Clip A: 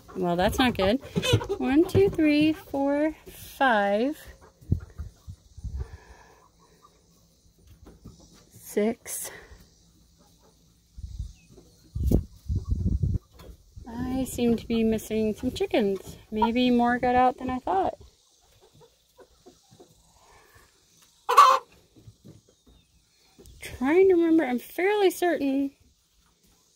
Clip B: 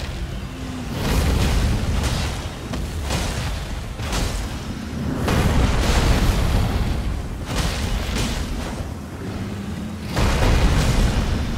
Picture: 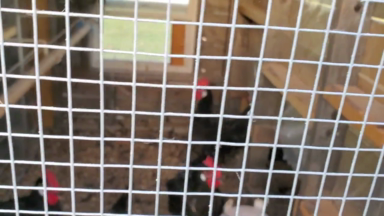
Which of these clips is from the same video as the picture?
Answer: A